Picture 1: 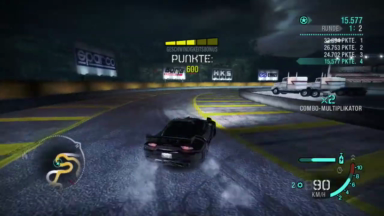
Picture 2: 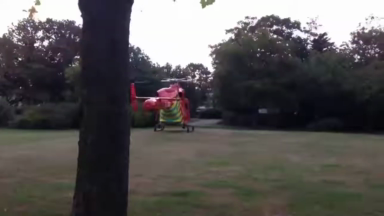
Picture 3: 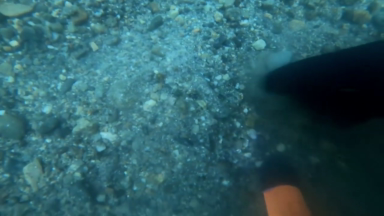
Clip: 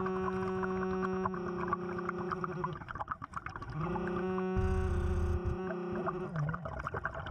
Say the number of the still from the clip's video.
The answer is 3